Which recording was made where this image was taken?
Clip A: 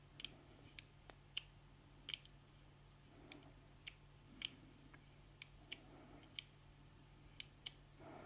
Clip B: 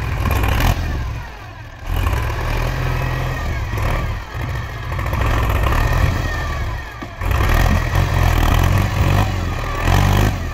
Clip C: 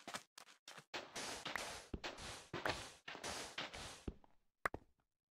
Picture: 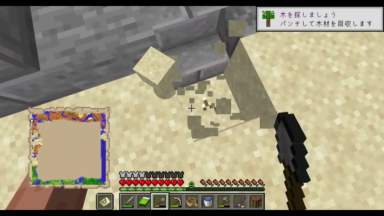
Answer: C